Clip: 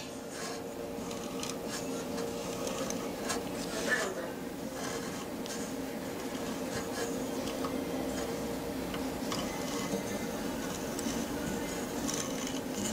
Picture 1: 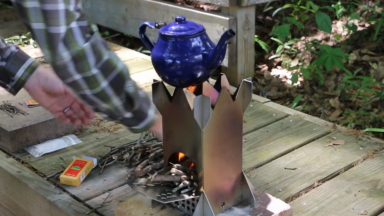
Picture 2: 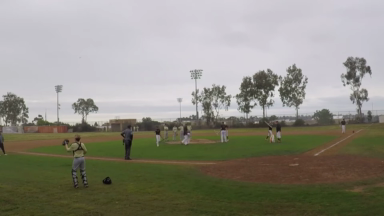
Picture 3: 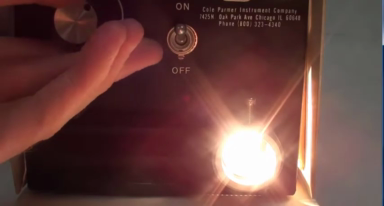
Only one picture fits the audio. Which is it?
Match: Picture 3